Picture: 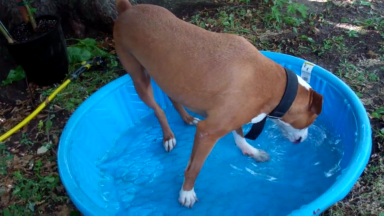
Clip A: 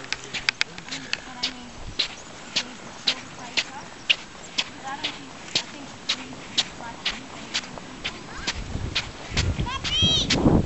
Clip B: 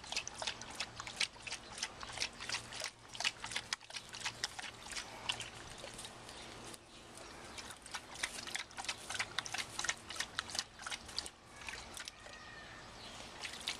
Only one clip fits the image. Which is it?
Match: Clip B